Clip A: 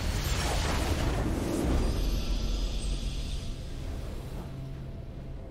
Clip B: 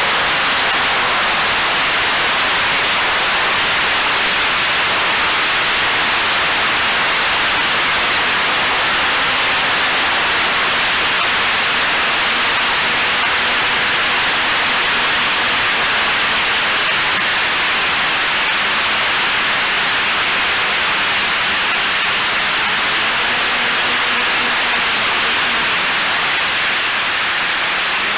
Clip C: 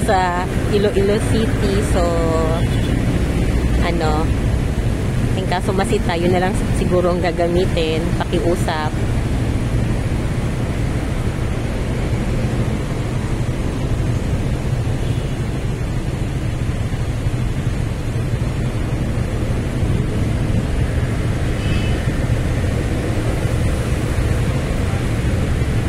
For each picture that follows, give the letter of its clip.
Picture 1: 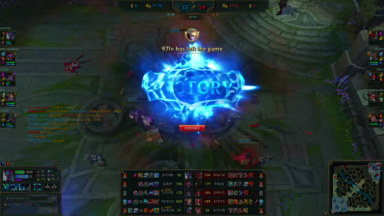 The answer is A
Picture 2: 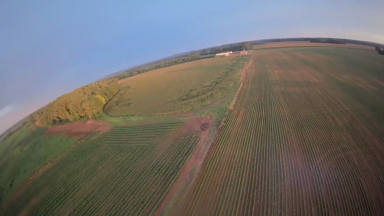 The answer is B